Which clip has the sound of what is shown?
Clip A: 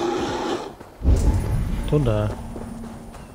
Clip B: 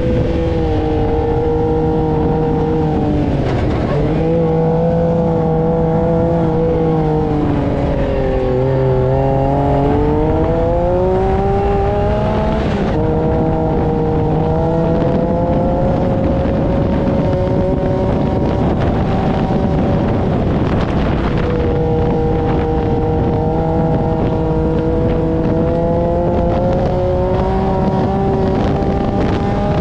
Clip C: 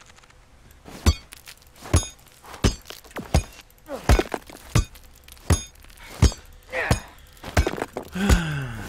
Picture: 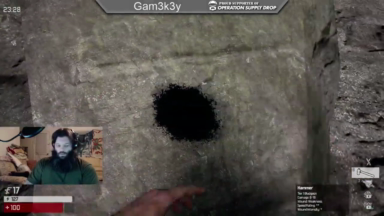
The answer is C